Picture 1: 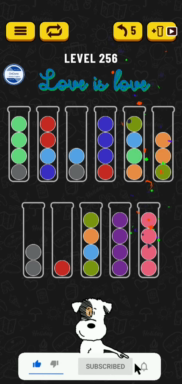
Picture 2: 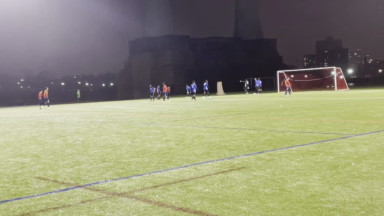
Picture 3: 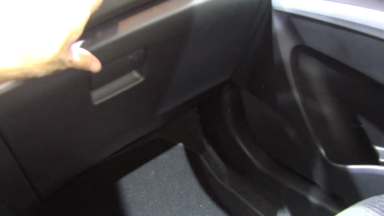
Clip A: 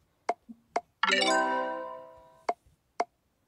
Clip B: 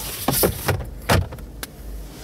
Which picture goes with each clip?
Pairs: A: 1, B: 3